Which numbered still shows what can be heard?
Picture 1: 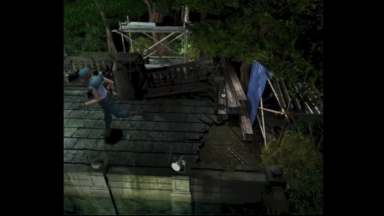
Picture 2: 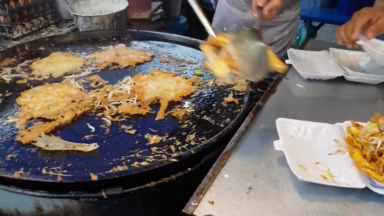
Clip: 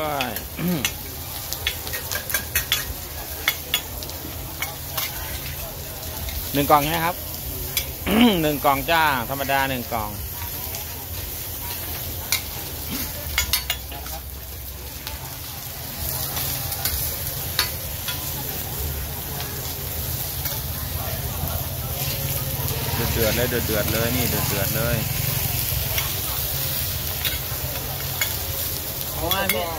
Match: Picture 2